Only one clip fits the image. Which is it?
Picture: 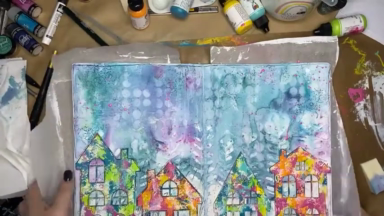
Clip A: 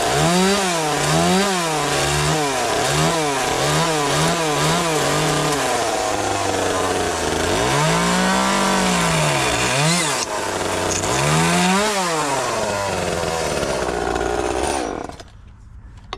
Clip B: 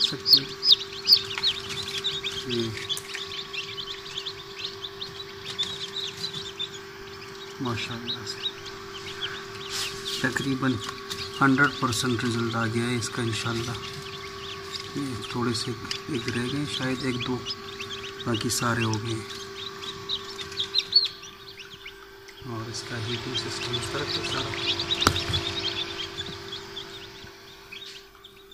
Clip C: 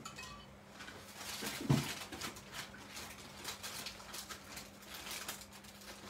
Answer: C